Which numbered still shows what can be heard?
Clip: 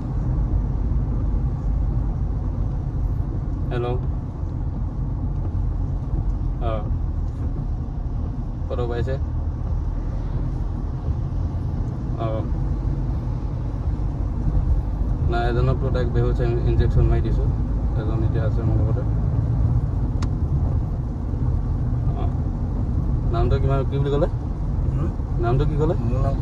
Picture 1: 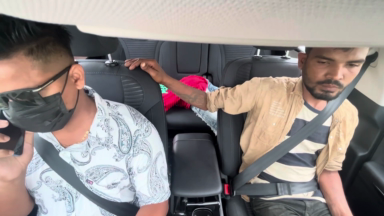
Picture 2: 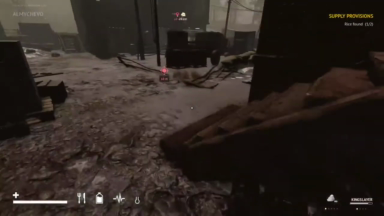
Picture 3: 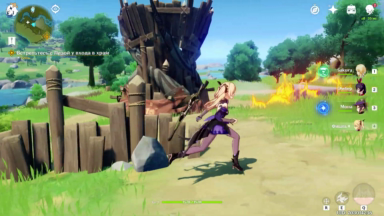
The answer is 1